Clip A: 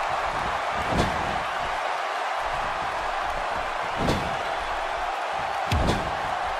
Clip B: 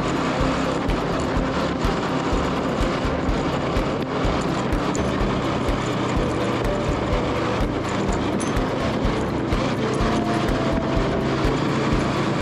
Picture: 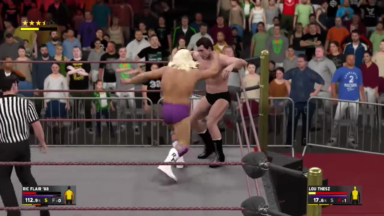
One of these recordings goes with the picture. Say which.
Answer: A